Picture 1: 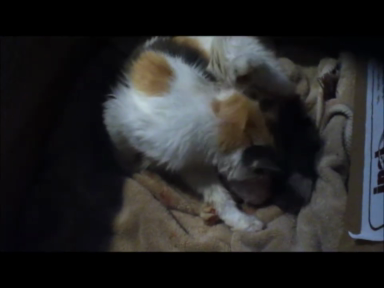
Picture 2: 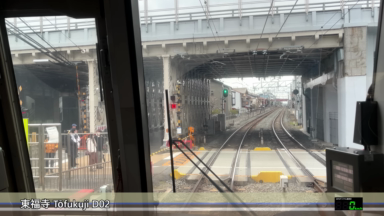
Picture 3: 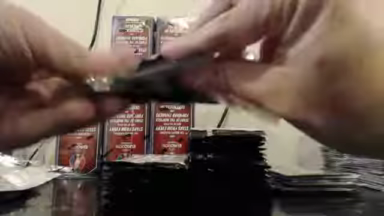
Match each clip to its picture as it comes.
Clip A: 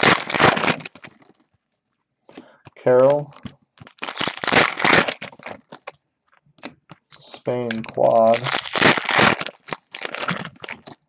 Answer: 3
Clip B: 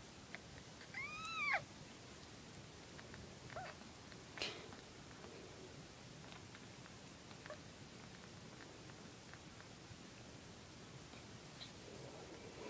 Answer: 1